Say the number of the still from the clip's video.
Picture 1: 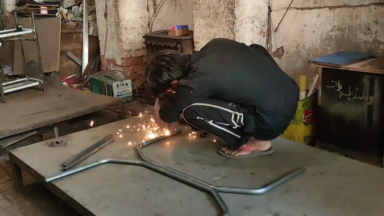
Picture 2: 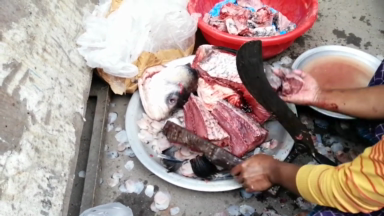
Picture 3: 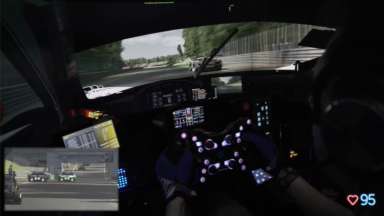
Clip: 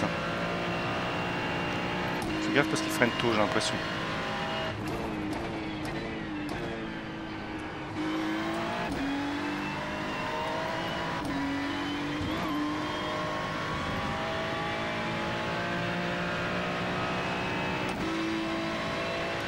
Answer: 3